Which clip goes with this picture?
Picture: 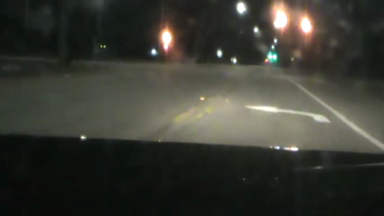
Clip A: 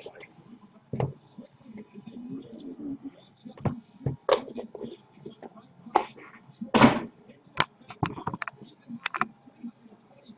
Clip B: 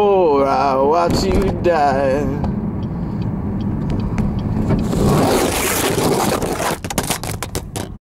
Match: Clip B